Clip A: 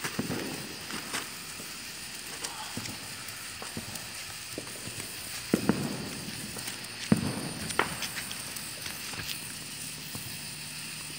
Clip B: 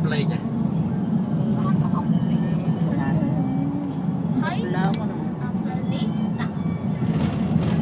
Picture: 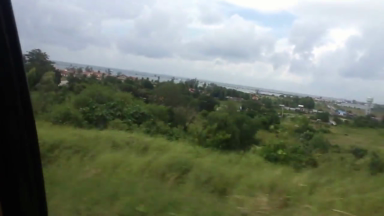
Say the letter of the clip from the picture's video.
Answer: B